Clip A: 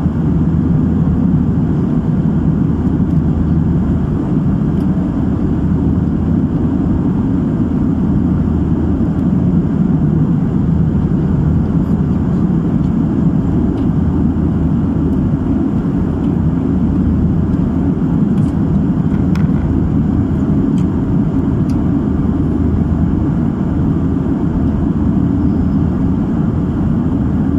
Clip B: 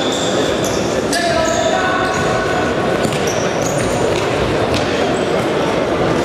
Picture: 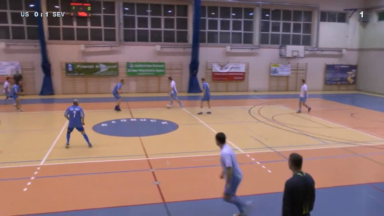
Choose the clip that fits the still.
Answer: B